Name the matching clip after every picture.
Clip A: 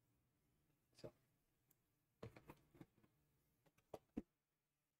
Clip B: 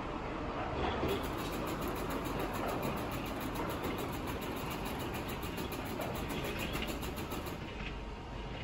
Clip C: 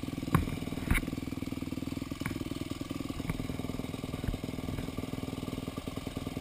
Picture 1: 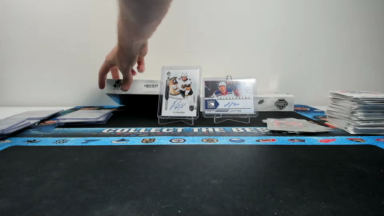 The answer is A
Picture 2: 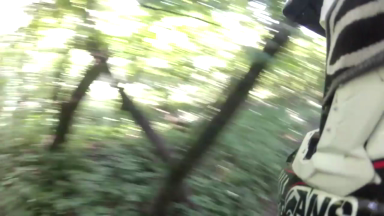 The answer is C